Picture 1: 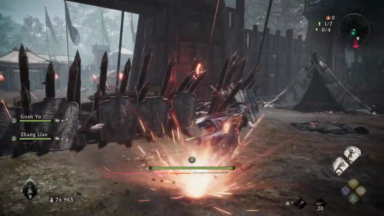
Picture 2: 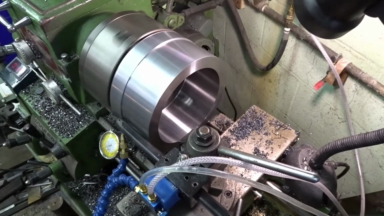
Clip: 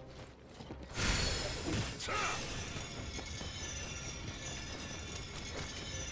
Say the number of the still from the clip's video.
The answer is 1